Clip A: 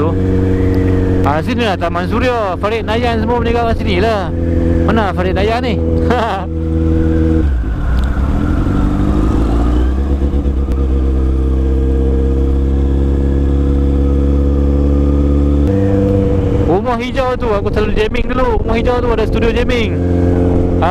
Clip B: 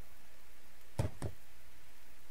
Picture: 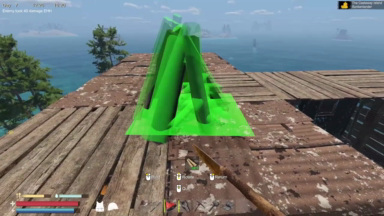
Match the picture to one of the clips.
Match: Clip B